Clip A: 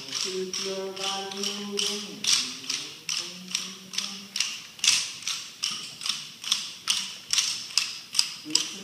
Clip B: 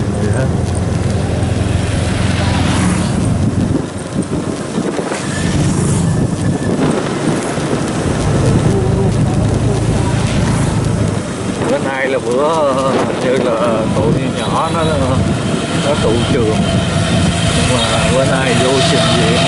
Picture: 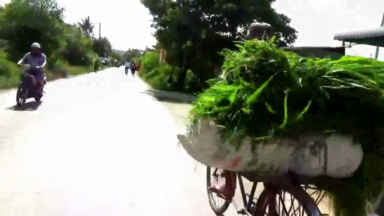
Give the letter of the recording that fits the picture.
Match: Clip B